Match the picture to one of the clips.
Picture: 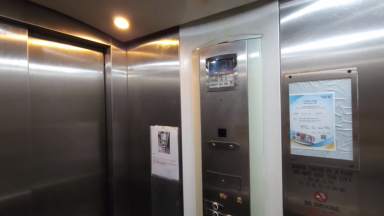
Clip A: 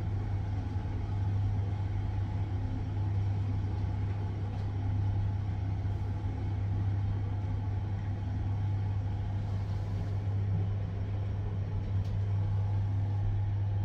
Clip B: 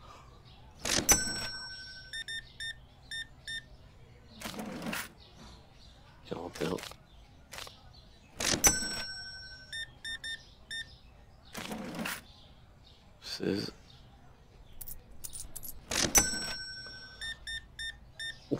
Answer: A